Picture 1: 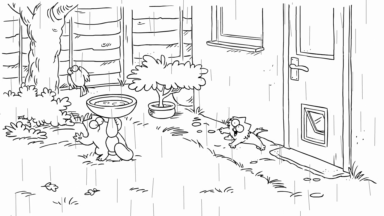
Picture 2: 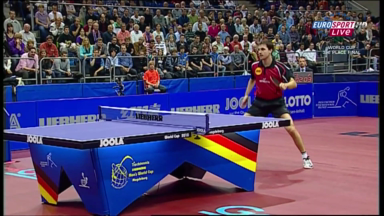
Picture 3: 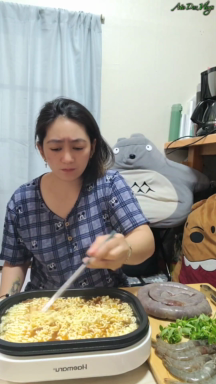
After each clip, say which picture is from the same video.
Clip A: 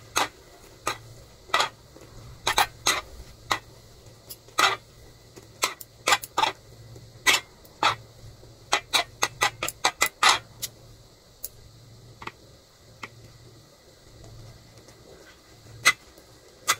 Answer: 3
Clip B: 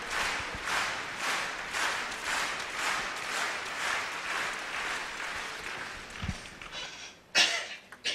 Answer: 2